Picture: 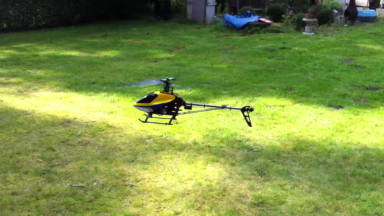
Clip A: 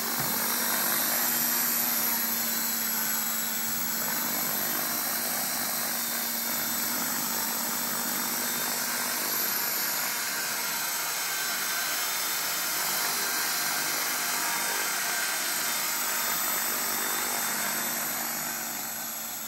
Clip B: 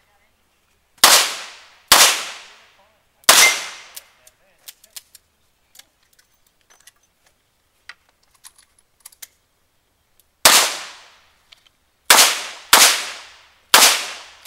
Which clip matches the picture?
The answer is A